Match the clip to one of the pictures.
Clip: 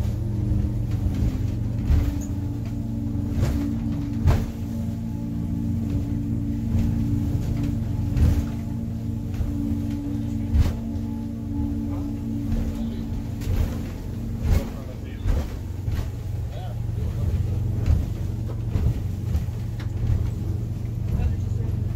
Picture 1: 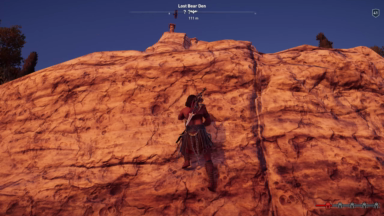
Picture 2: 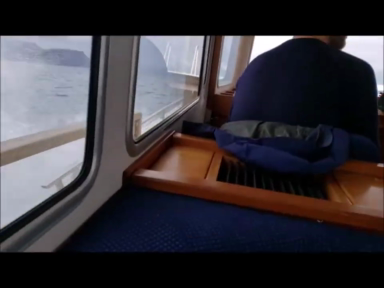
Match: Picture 2